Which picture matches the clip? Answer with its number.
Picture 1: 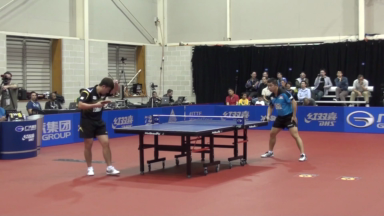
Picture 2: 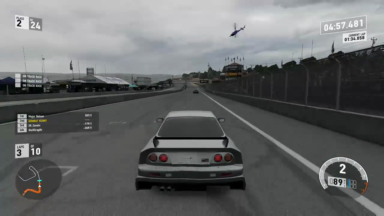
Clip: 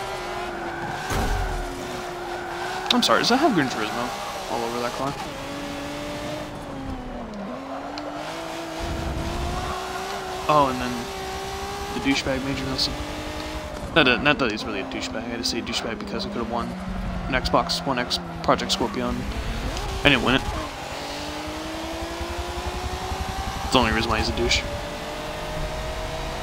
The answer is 2